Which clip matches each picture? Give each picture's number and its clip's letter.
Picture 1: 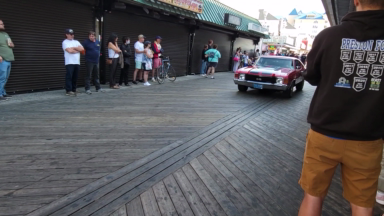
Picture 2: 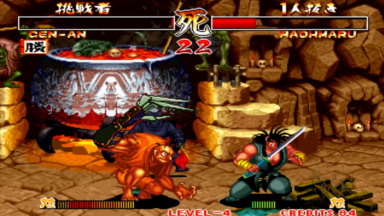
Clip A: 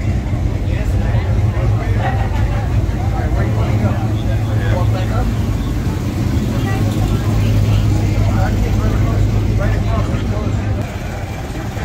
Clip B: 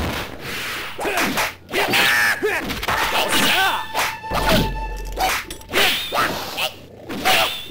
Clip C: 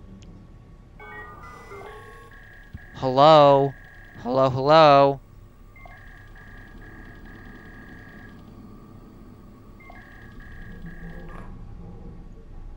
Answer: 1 A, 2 B